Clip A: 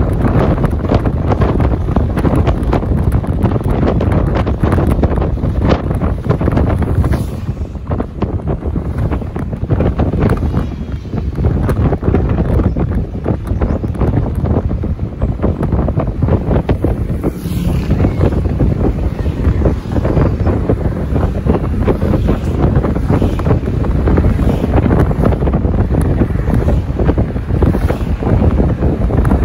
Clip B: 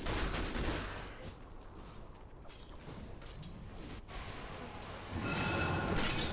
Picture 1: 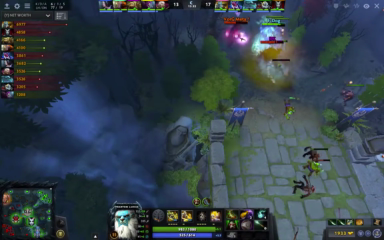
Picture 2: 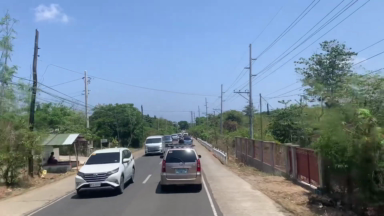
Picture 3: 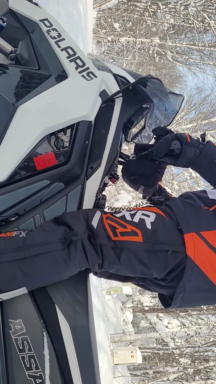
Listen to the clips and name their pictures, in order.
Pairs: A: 2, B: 1